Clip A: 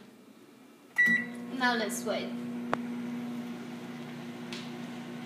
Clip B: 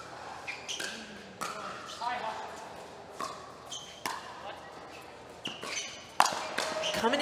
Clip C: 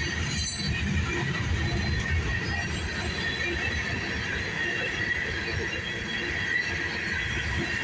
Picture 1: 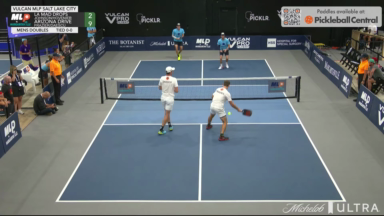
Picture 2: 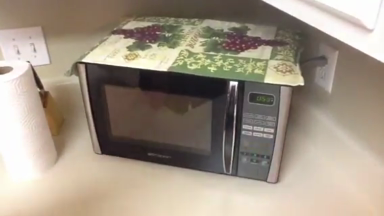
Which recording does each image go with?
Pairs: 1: B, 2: A